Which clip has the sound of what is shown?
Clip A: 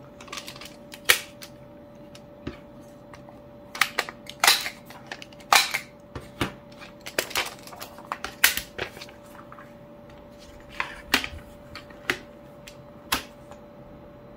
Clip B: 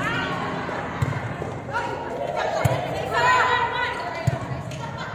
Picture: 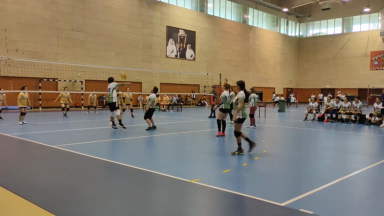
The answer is B